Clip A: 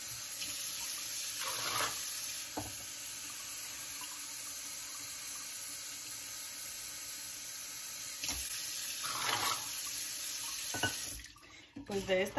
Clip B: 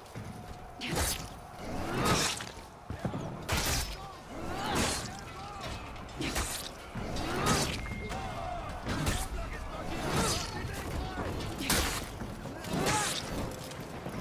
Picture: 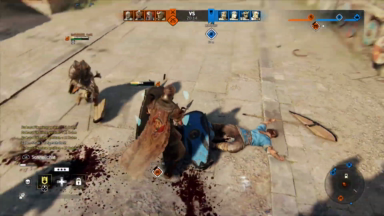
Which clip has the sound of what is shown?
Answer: B